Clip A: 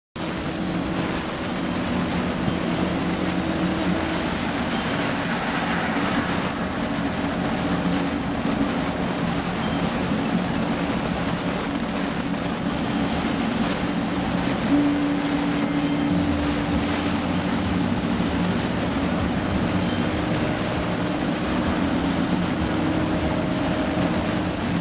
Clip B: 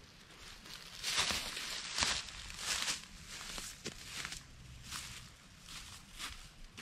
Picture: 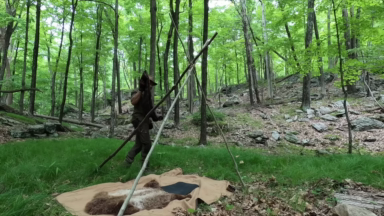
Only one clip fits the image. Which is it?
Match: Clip B